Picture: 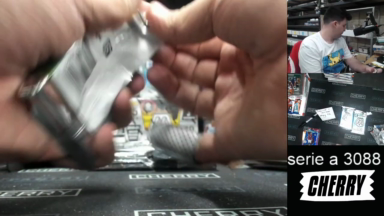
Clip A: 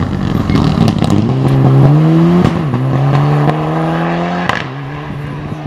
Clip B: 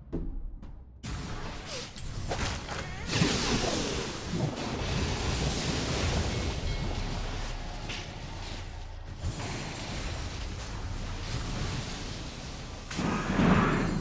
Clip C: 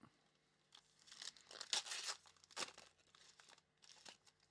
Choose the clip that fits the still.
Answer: C